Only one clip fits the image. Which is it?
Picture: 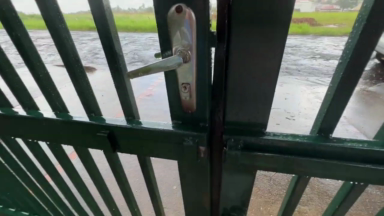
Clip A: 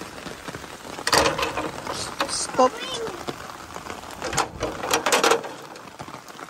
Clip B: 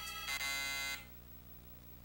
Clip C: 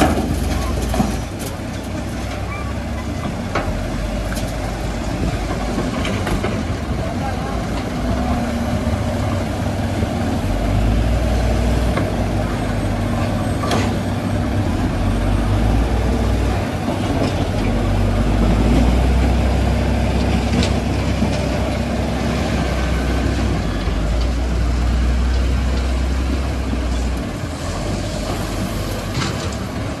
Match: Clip A